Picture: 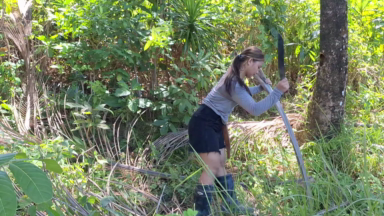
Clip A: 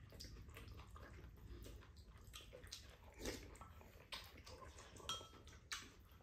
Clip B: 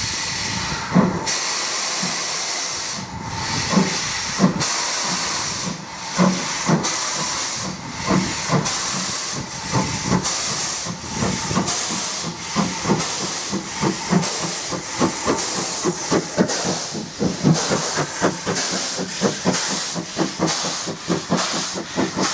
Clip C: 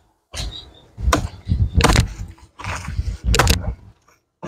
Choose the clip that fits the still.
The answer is C